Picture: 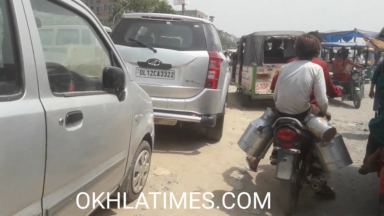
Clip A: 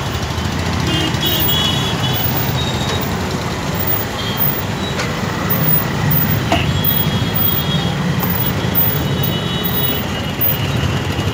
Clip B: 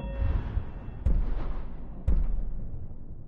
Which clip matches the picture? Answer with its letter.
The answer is A